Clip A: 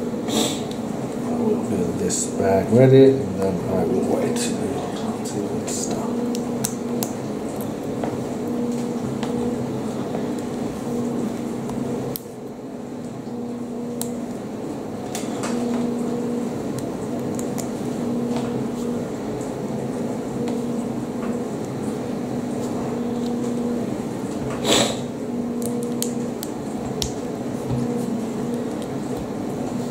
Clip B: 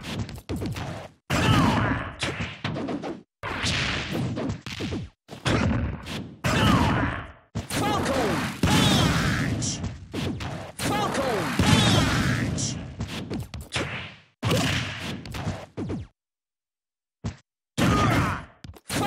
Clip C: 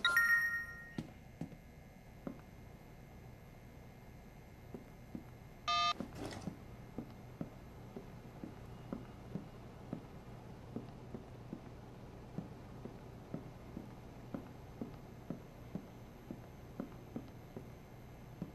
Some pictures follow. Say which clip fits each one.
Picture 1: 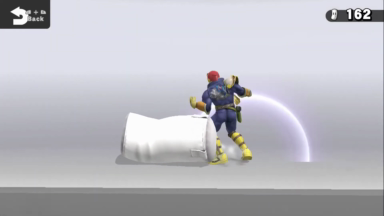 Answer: B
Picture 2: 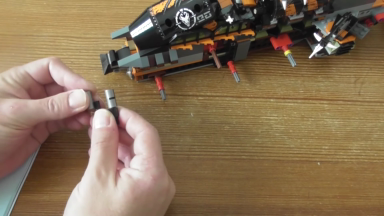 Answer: A